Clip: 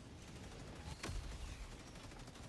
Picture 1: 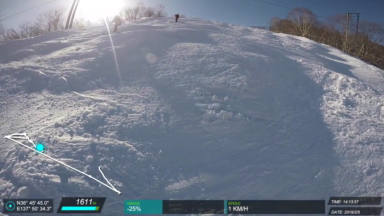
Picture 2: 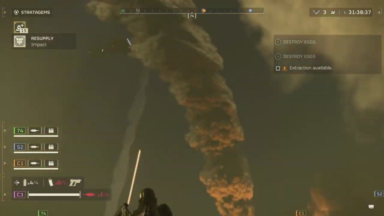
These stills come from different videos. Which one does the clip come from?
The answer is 2